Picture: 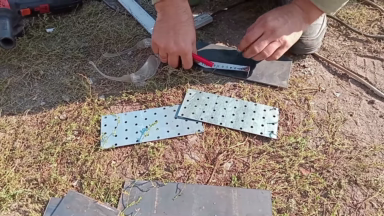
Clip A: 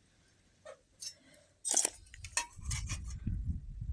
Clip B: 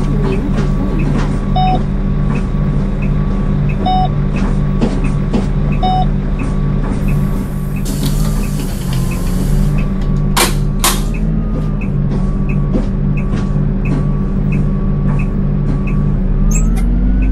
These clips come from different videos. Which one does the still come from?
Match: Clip A